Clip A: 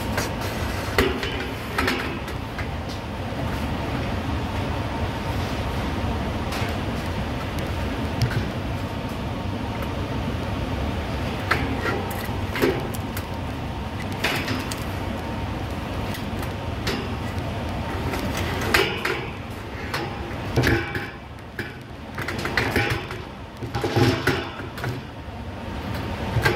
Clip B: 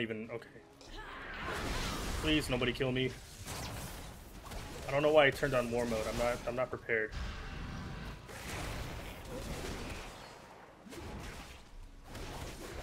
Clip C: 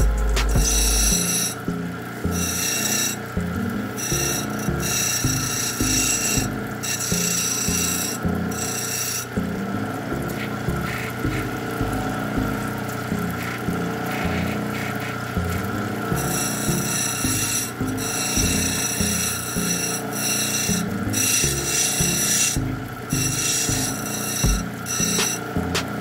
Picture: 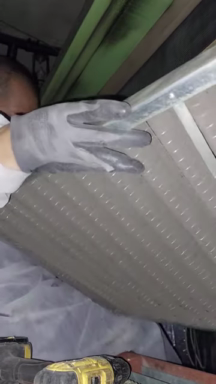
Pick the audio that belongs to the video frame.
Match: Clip A